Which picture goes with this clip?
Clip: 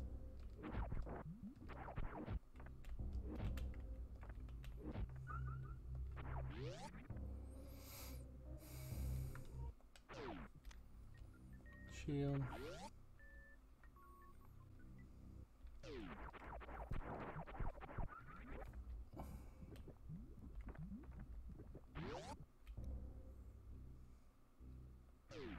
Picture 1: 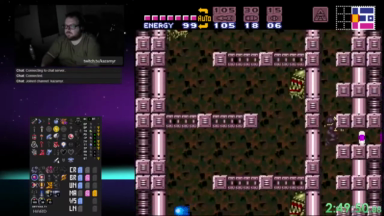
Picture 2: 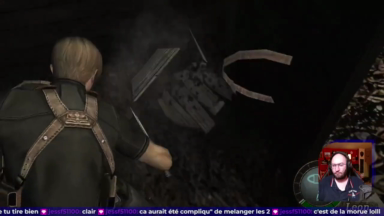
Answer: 1